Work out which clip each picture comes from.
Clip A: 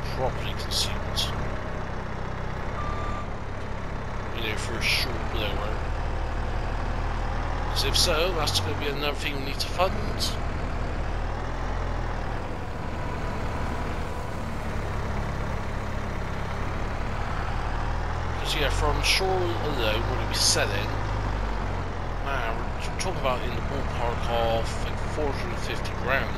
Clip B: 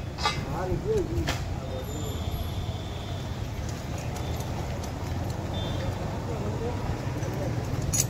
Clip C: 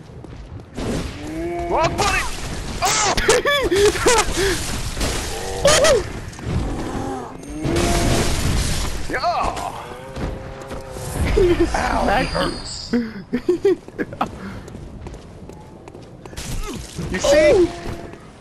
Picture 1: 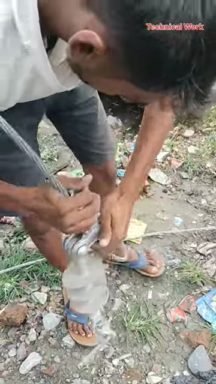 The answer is B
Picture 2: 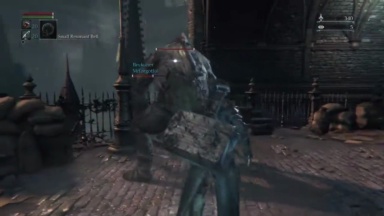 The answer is C